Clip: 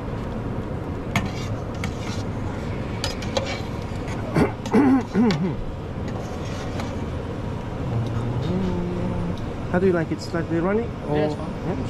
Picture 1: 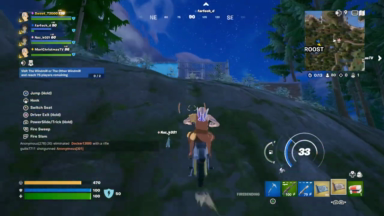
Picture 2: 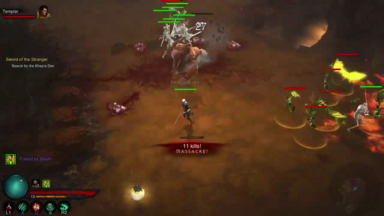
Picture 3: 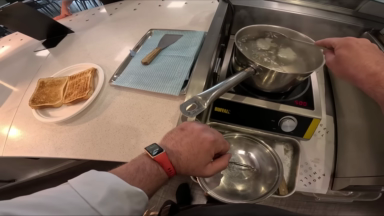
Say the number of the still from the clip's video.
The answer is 3